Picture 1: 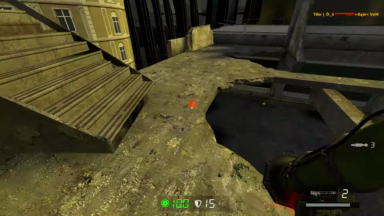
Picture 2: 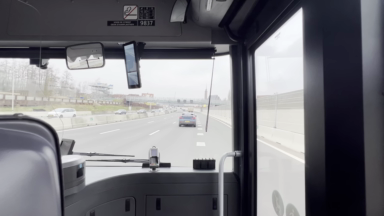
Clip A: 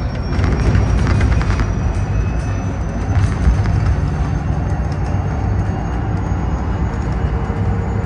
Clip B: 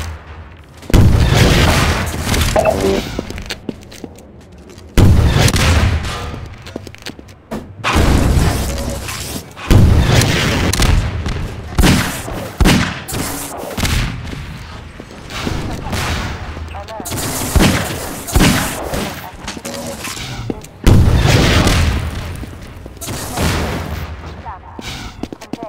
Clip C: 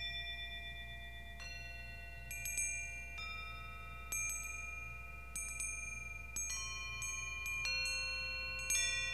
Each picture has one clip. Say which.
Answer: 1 B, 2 A